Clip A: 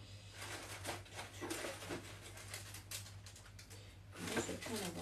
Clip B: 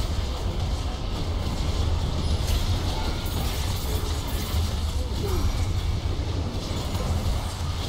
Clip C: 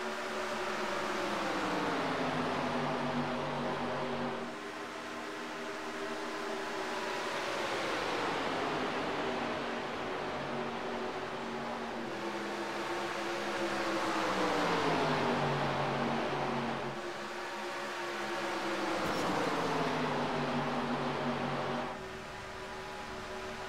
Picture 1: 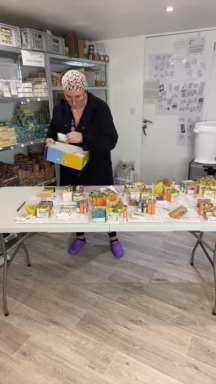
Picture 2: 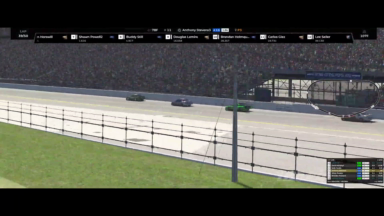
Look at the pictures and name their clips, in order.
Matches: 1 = A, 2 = C